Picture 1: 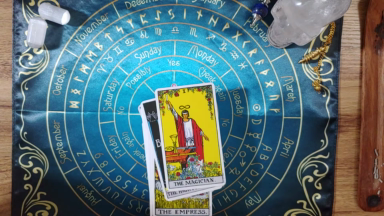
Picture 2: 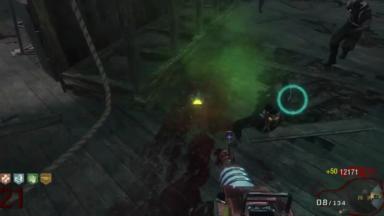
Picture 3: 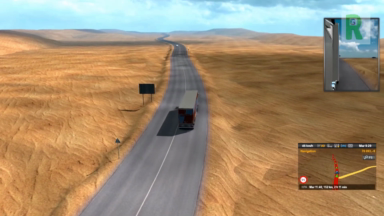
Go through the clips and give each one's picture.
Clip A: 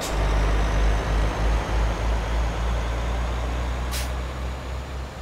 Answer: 3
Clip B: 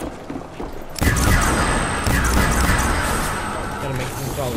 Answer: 2